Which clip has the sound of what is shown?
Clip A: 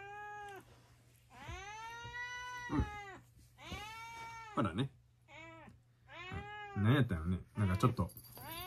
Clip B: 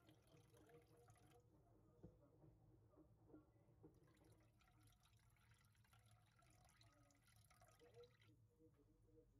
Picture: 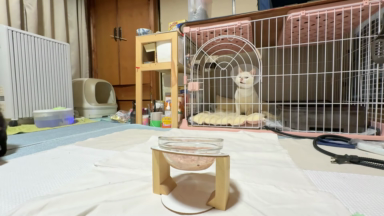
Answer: A